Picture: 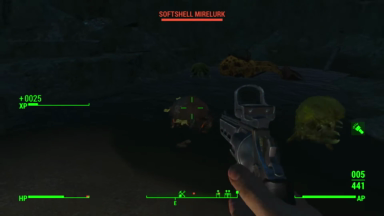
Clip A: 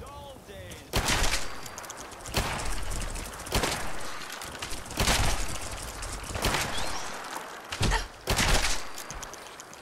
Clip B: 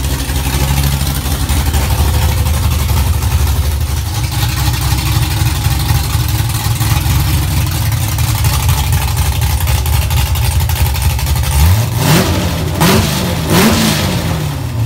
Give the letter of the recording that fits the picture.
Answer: A